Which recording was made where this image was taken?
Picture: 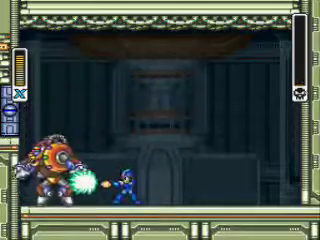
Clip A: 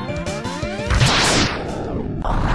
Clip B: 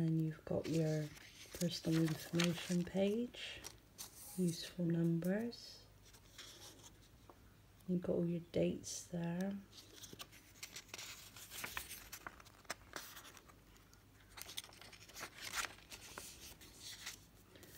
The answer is A